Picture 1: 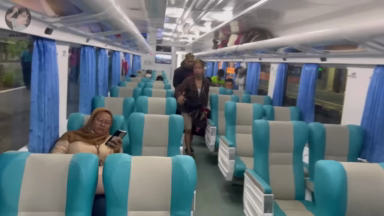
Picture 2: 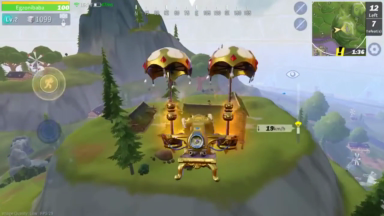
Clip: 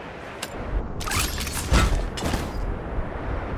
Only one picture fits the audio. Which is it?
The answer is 2